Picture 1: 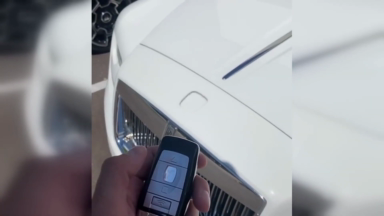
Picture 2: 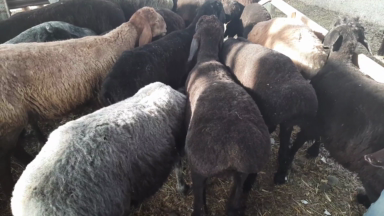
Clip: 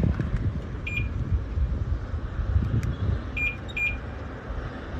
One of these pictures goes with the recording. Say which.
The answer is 1